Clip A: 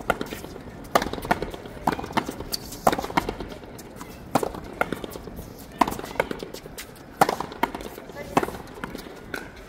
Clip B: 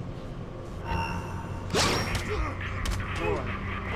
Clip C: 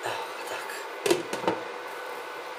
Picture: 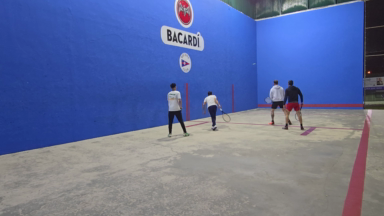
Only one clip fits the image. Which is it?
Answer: A